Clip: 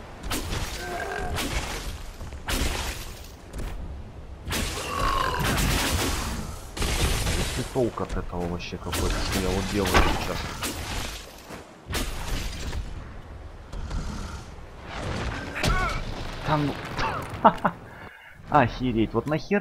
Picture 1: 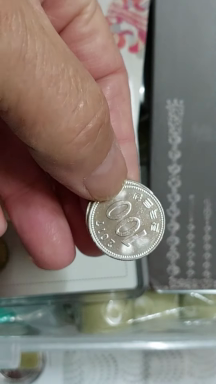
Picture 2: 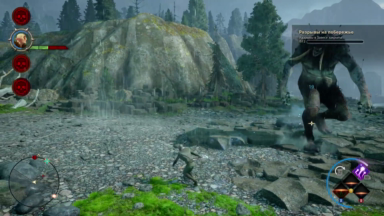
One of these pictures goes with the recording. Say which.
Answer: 2